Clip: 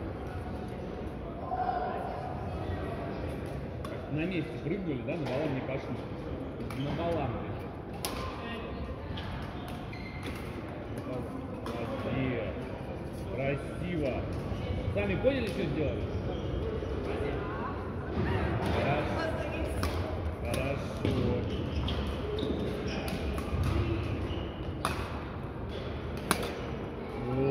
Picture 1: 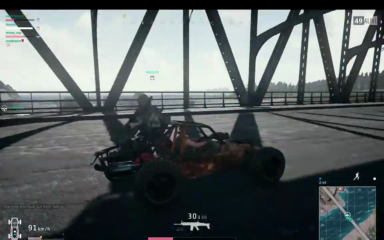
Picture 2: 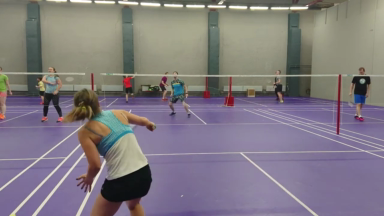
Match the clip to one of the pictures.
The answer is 2